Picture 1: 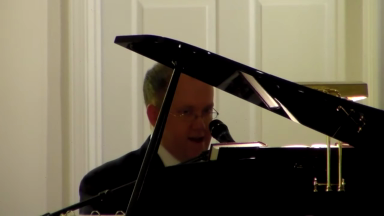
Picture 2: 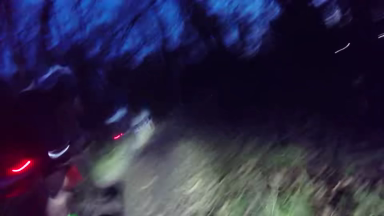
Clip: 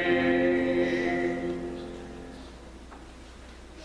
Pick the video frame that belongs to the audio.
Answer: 1